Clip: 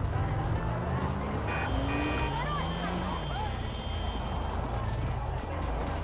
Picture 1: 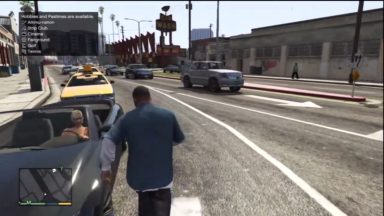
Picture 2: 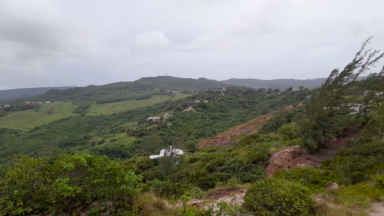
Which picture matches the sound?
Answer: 1